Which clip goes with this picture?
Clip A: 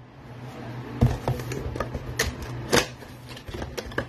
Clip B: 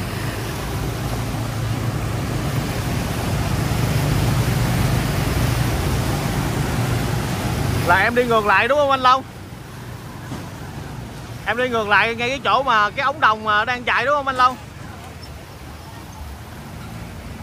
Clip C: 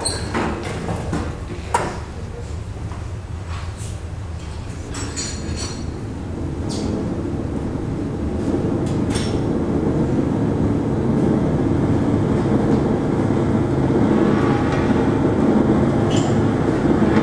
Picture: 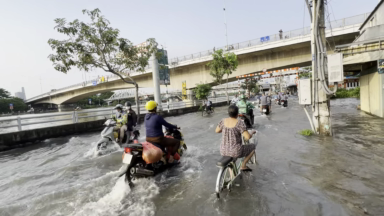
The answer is B